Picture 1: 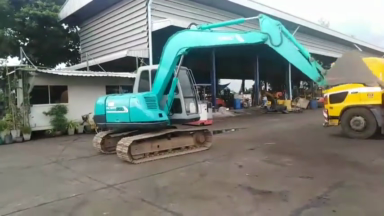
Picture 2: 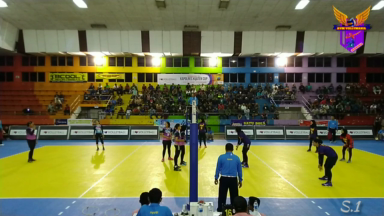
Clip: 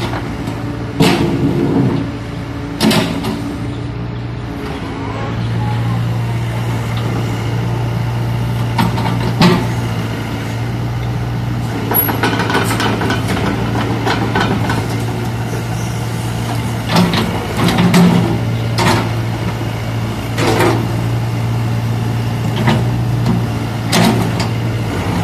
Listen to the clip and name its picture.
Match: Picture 1